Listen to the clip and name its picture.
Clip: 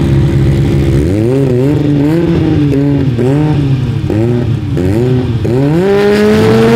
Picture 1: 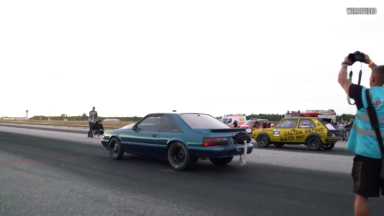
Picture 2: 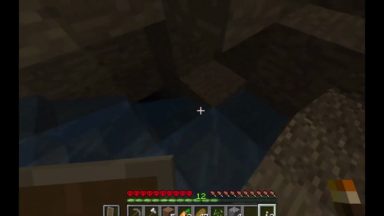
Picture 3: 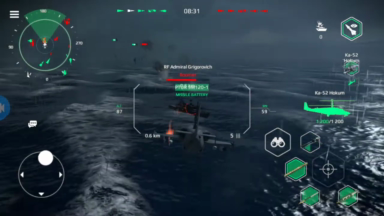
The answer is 1